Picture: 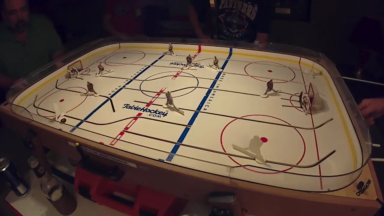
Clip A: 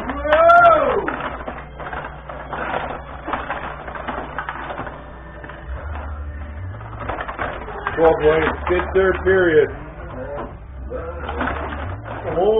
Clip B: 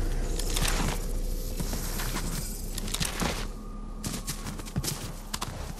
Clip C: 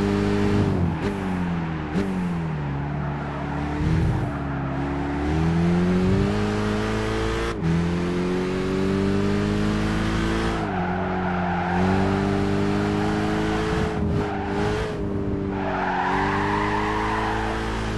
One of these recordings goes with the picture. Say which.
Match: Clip A